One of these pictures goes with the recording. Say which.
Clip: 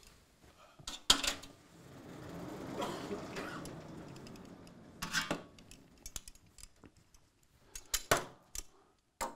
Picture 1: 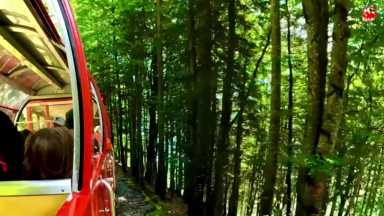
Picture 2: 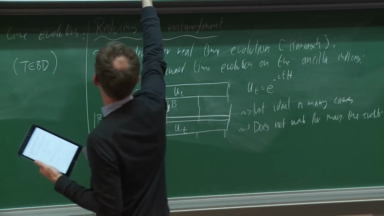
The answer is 2